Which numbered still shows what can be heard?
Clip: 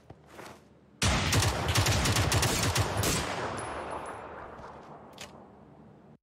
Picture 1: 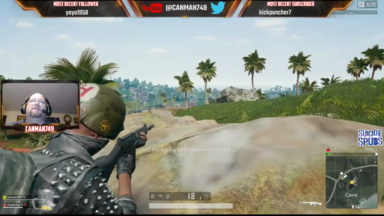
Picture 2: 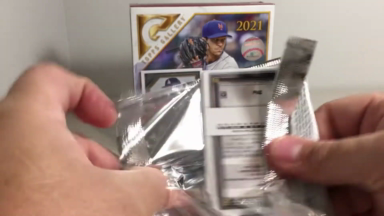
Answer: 1